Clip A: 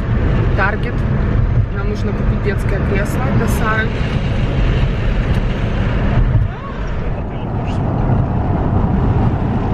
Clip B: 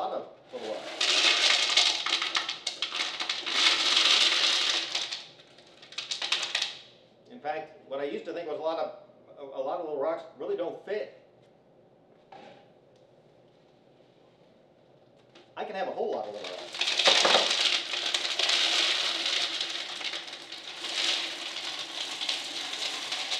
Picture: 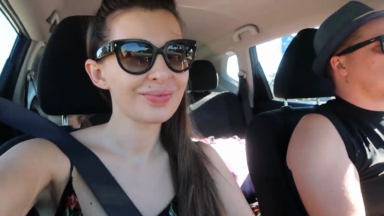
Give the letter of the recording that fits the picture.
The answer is A